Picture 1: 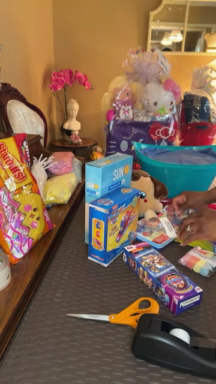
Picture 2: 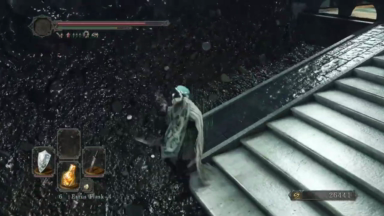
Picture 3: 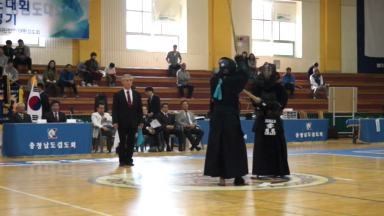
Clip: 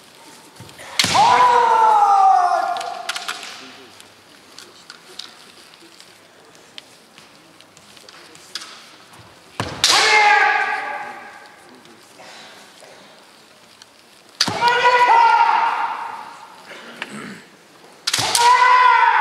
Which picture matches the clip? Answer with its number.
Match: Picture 3